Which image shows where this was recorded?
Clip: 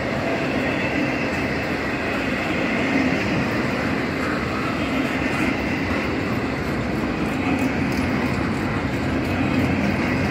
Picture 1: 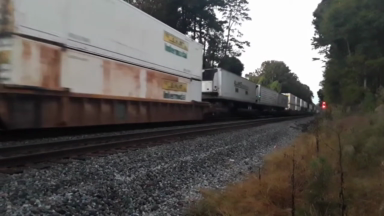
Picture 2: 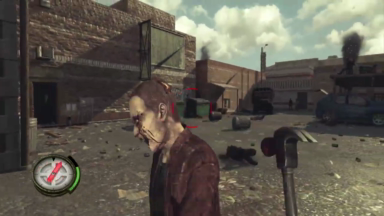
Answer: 1